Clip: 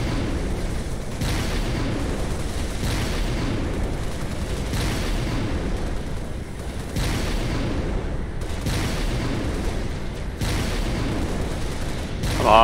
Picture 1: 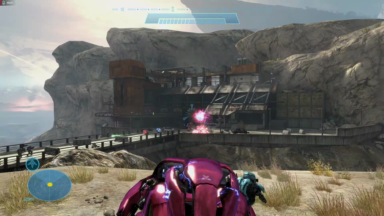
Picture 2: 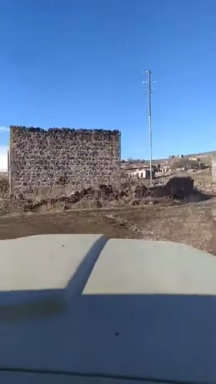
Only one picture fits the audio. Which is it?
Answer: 1